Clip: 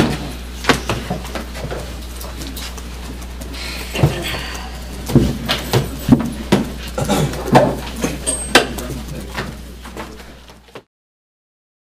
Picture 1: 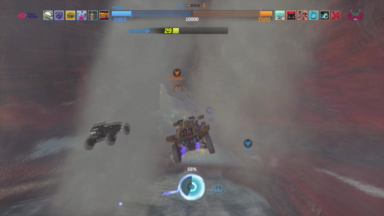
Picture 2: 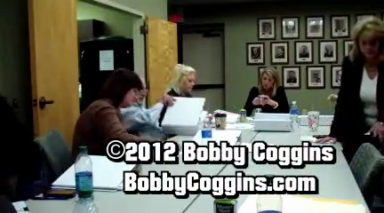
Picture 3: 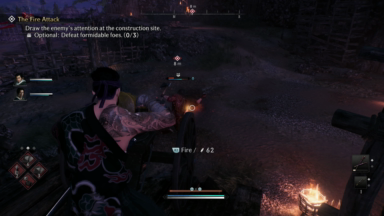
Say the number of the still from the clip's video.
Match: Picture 2